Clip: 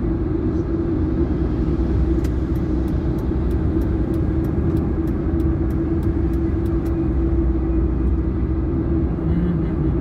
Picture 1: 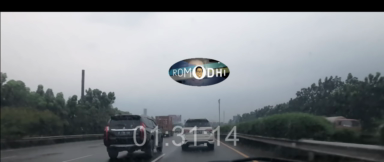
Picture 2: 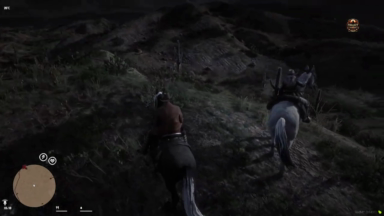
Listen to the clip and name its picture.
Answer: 1